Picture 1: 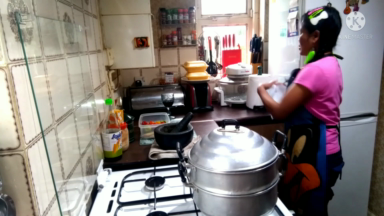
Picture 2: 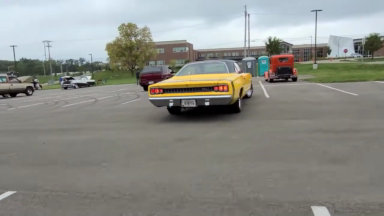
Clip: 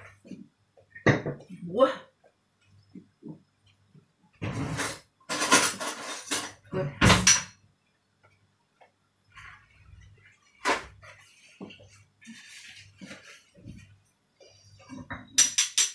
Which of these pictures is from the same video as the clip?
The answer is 1